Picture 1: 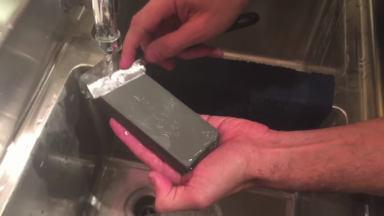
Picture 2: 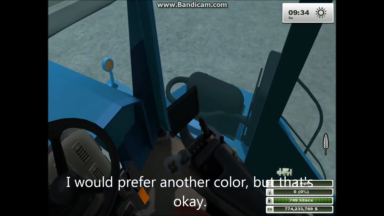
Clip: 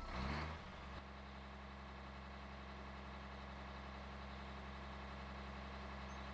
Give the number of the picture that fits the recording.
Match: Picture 2